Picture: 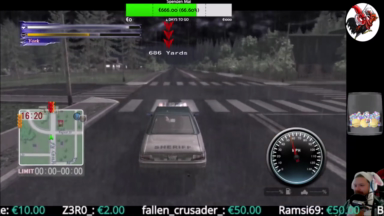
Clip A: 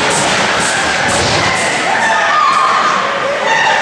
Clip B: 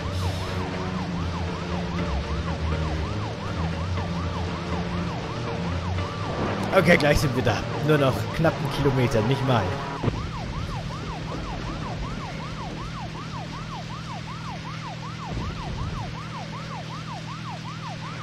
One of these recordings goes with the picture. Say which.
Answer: B